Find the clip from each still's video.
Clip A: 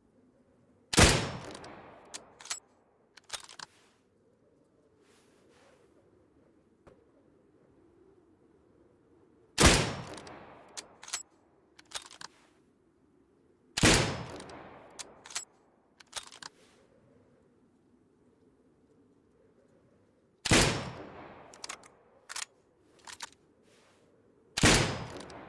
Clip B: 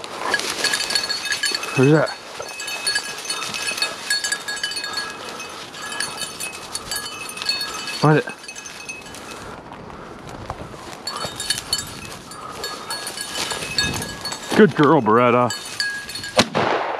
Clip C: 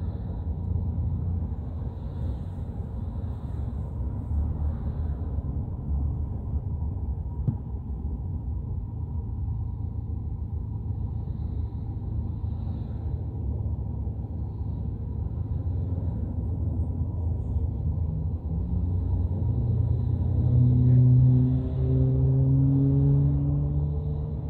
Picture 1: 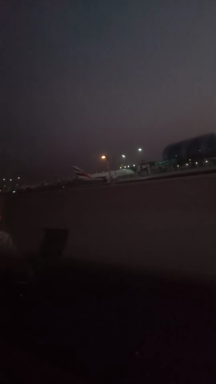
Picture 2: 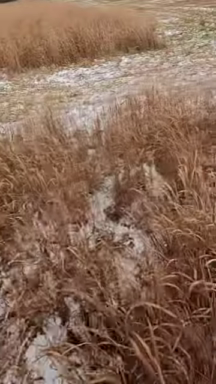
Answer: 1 C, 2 B